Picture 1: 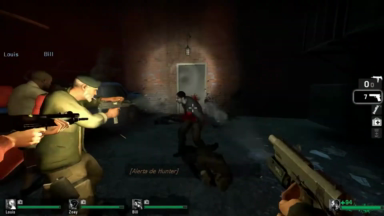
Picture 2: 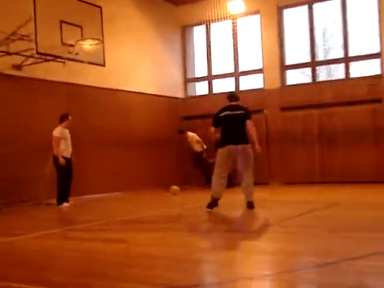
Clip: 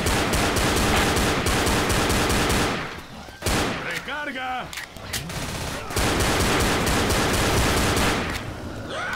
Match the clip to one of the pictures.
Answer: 1